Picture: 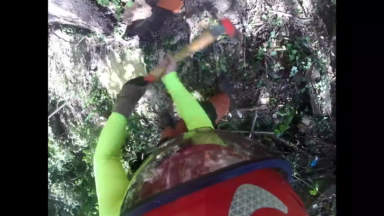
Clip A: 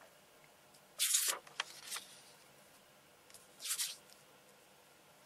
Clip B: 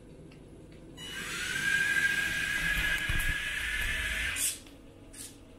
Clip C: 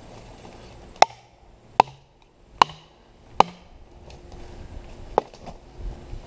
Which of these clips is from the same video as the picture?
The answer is C